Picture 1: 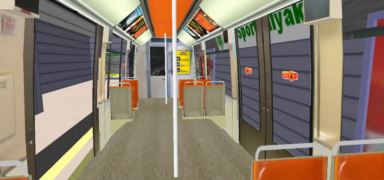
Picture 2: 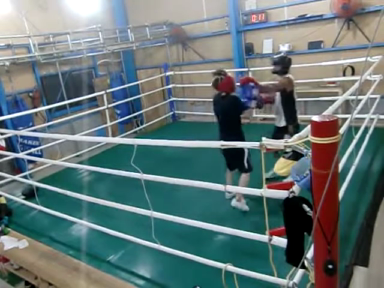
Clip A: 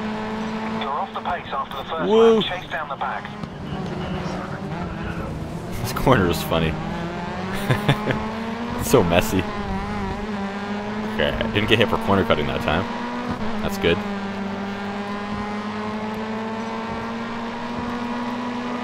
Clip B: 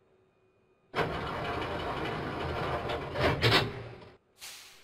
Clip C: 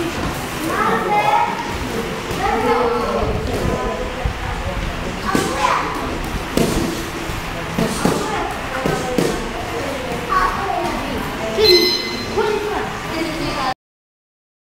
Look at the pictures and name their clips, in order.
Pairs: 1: B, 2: C